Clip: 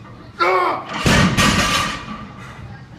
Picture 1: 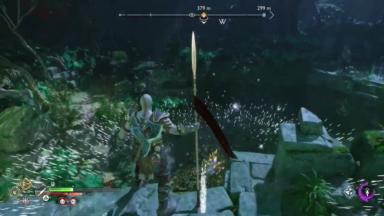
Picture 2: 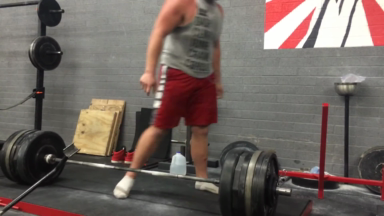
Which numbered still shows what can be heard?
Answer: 2